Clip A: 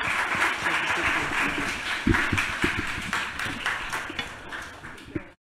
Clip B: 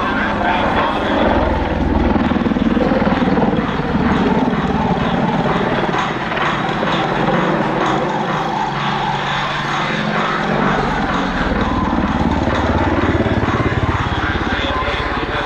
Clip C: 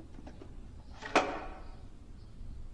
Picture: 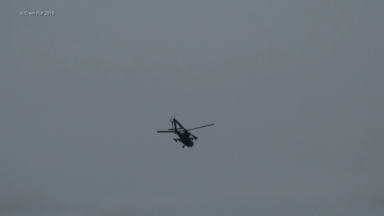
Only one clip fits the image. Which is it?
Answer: B